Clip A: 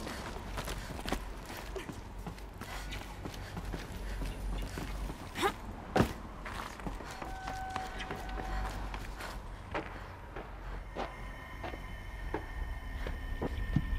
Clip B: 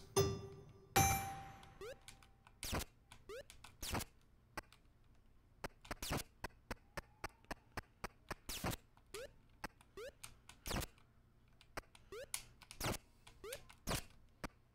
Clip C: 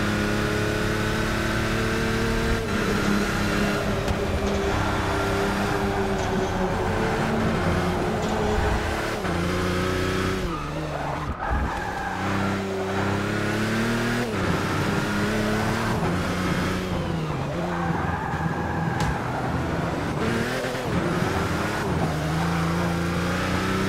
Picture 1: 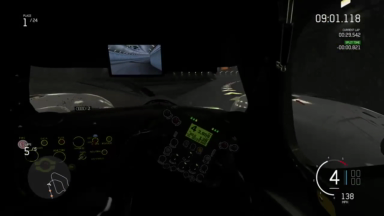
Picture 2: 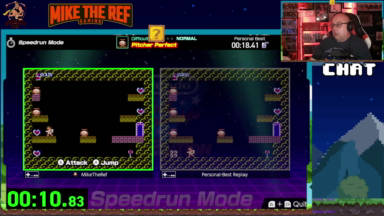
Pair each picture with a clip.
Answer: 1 C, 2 B